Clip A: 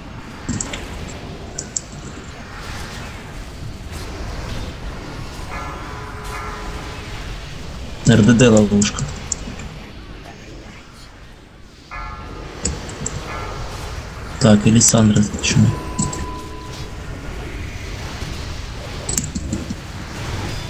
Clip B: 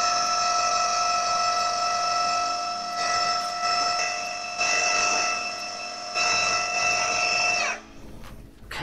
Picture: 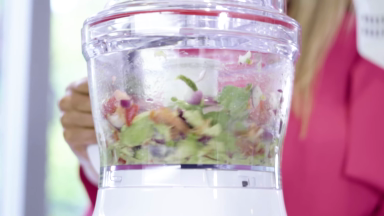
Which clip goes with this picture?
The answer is B